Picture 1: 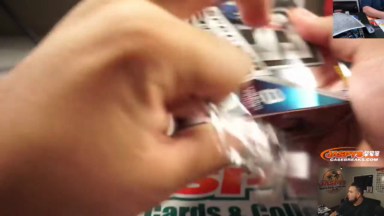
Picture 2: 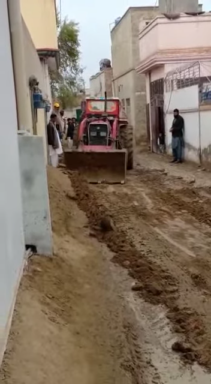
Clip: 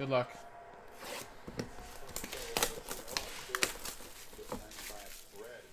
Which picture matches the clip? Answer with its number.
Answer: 1